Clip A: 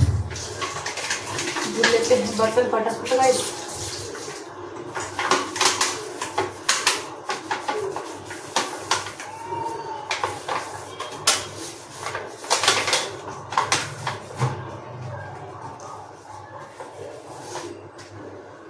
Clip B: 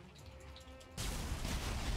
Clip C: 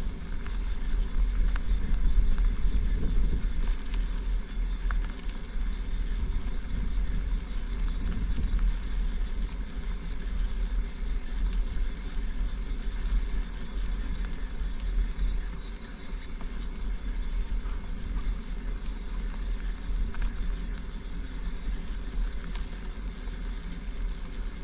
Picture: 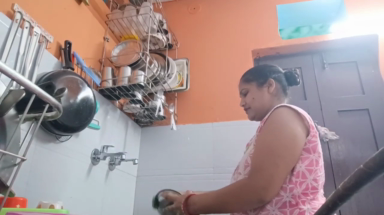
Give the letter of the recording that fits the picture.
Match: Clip A